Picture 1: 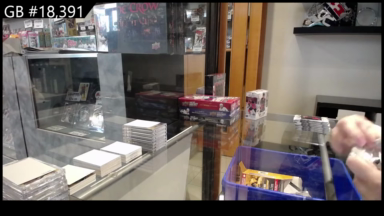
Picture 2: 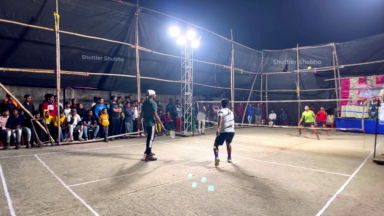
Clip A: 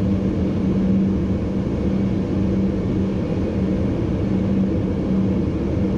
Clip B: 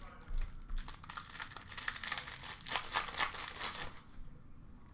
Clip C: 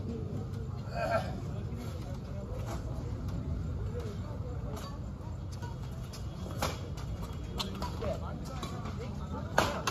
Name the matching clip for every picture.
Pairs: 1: B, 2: C